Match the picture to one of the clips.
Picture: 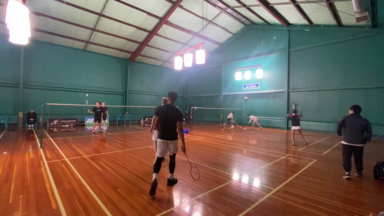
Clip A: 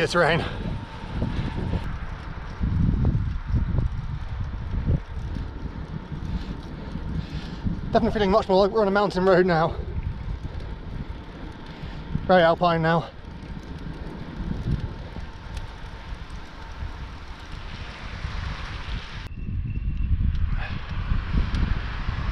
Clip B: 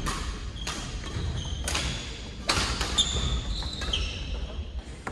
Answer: B